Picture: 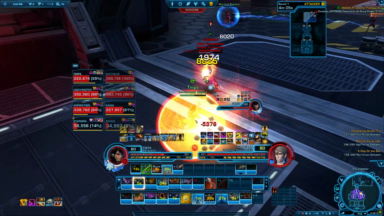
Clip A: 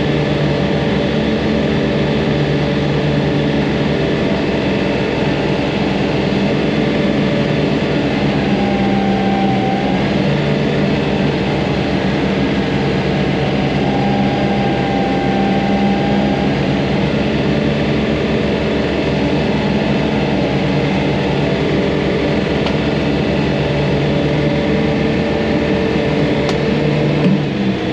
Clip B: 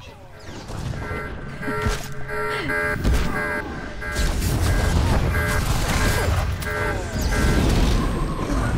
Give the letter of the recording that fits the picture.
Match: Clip B